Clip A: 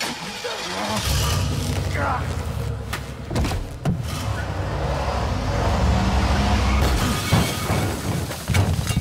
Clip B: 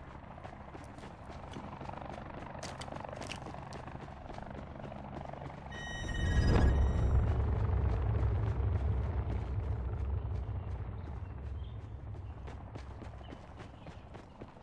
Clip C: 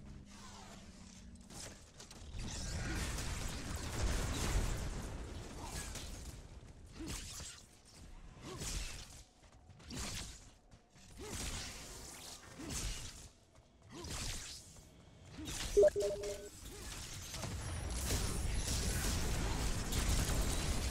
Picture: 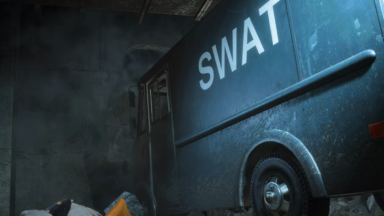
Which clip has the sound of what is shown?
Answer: A